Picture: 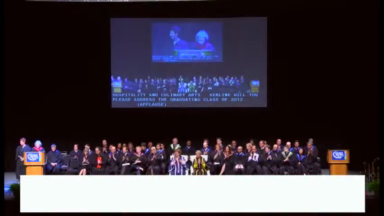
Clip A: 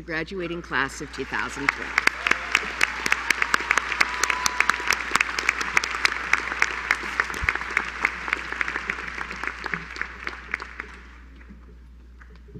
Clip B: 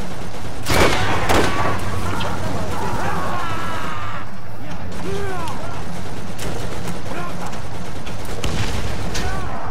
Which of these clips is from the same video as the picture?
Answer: A